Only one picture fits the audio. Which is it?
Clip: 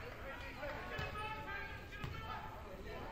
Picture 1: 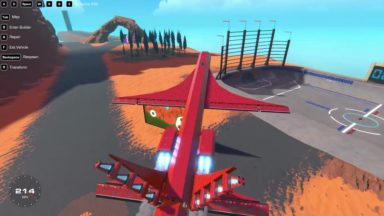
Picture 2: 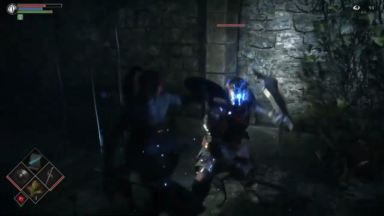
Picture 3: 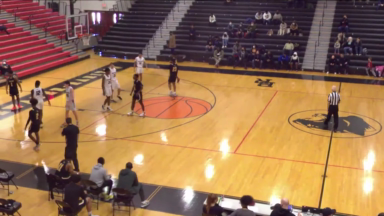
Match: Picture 3